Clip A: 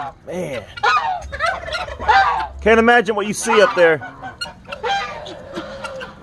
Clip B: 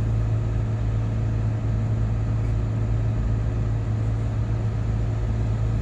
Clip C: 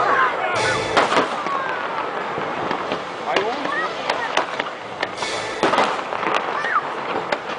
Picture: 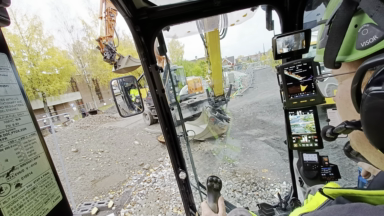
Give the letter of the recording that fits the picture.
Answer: B